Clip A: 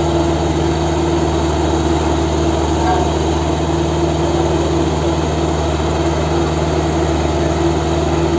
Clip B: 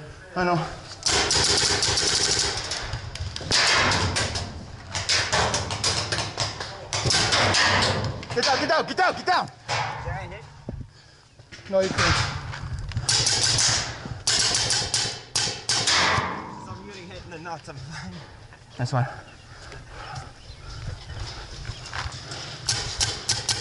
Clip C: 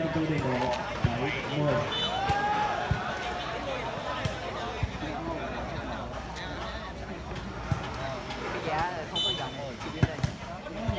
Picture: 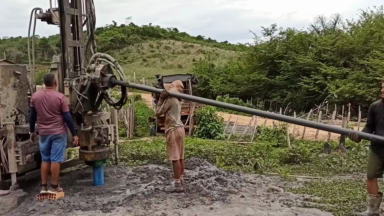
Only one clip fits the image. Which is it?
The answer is A